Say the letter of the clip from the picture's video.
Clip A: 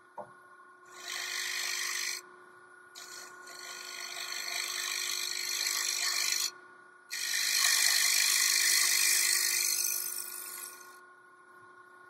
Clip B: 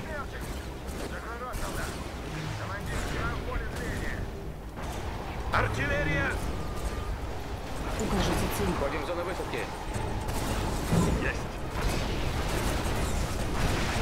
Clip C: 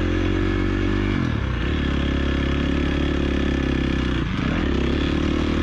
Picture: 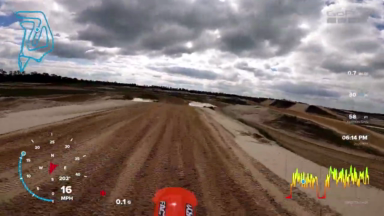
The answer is C